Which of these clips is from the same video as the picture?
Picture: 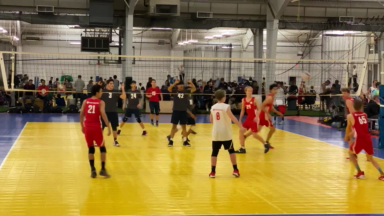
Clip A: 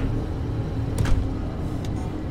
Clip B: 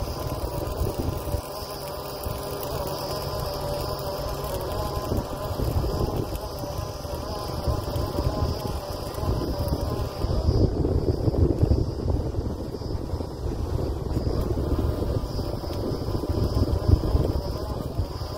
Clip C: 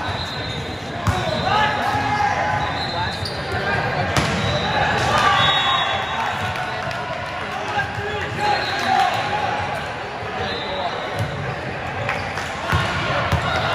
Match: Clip C